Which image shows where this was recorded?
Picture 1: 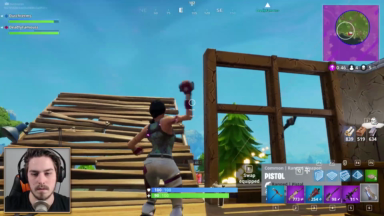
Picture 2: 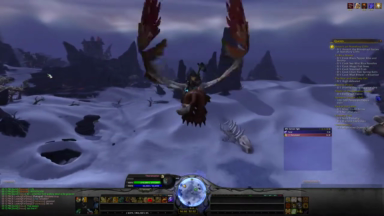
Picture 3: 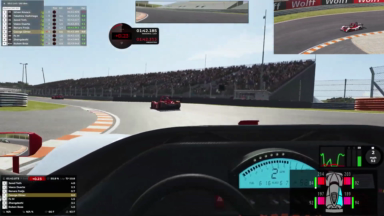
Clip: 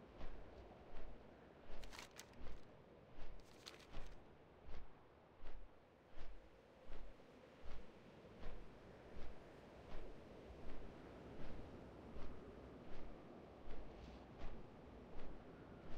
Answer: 2